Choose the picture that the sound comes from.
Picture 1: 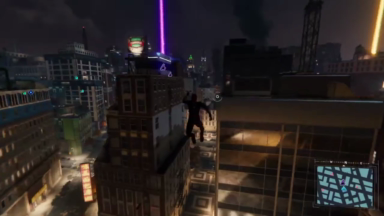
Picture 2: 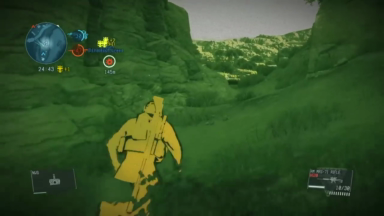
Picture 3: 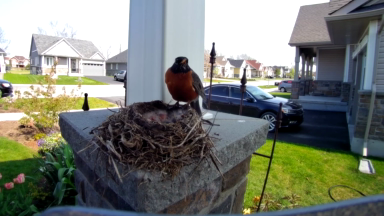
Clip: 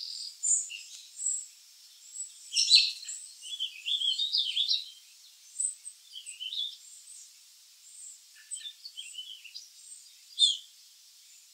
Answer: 3